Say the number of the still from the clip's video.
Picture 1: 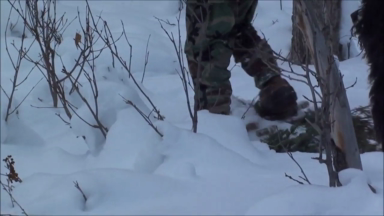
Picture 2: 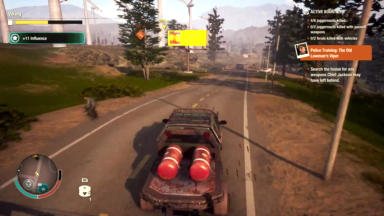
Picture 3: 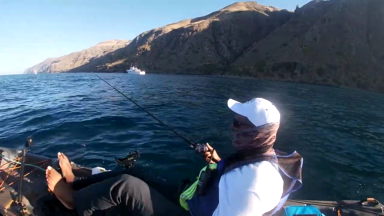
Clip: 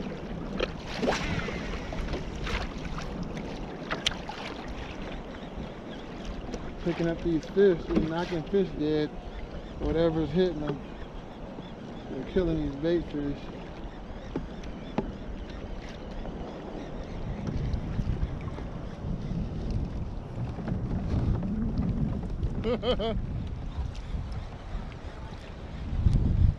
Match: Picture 3